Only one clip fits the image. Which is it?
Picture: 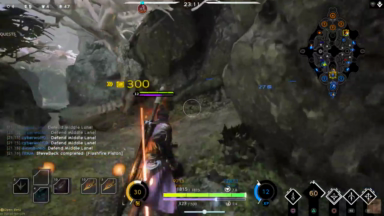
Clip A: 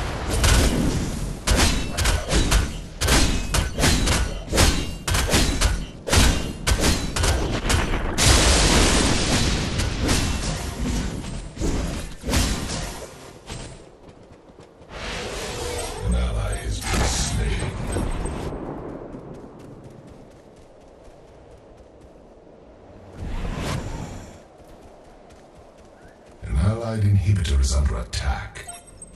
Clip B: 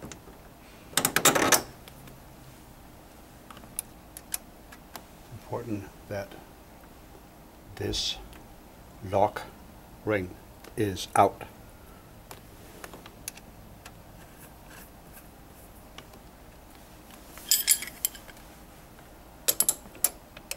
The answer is A